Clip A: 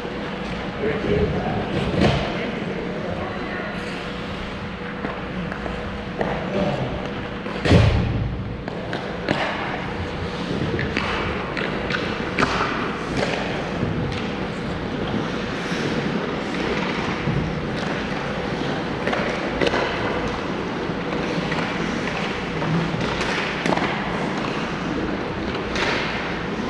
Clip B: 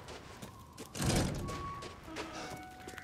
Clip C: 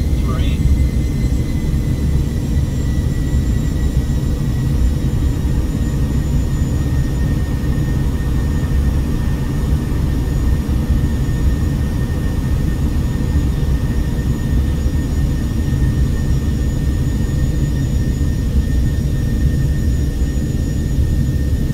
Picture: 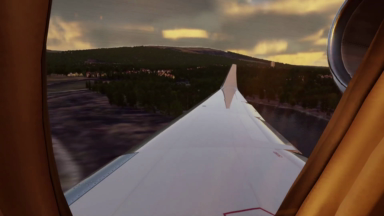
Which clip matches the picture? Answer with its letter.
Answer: C